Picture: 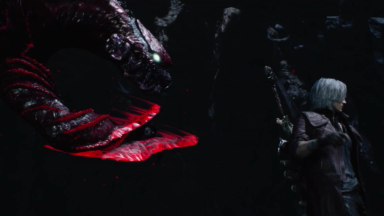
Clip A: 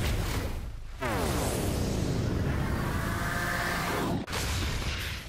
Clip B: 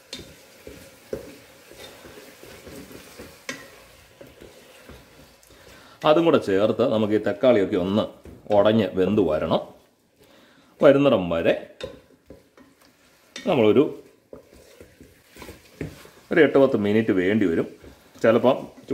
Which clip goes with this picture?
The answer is A